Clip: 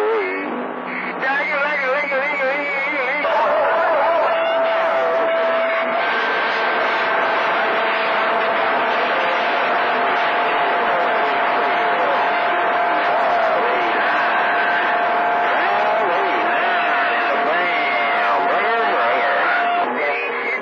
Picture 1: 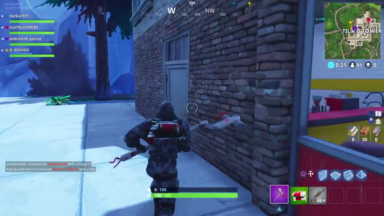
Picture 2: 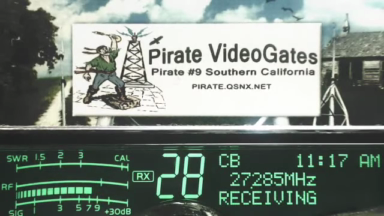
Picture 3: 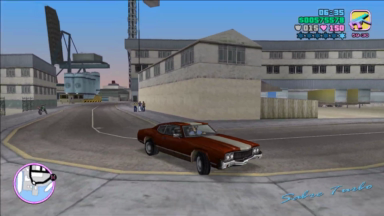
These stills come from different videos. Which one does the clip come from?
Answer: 2